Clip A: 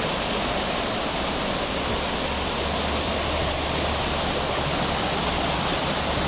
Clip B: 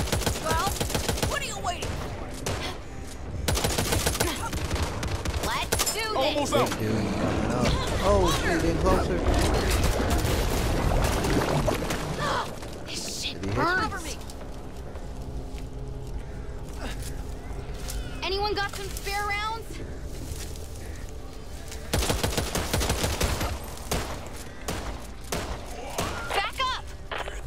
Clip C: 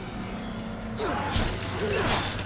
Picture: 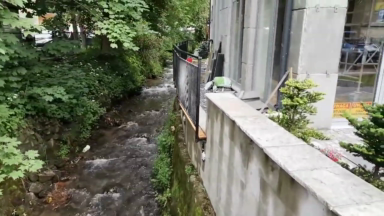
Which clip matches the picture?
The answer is A